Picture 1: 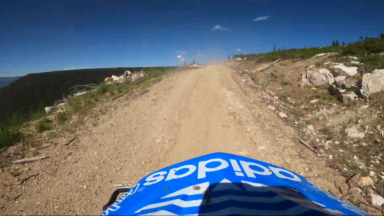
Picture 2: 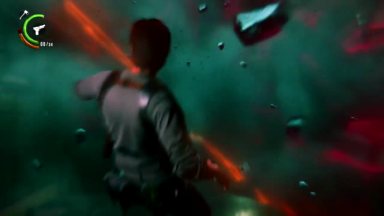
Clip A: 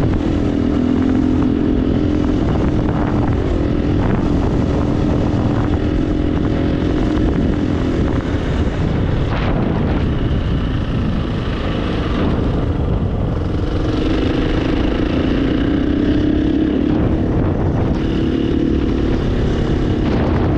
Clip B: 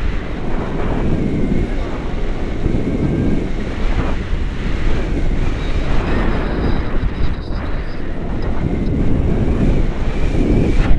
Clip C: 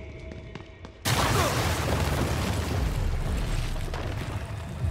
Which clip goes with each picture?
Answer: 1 A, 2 C